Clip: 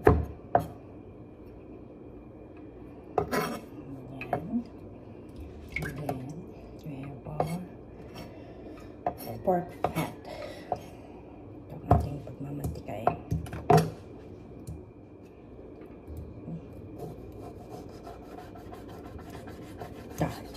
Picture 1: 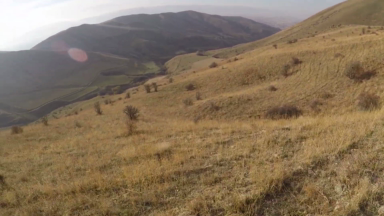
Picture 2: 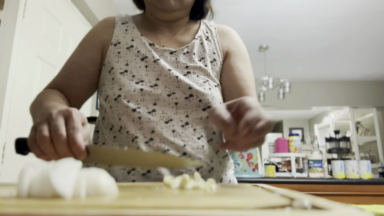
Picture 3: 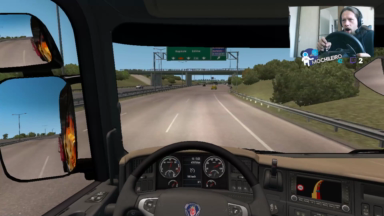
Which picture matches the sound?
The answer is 2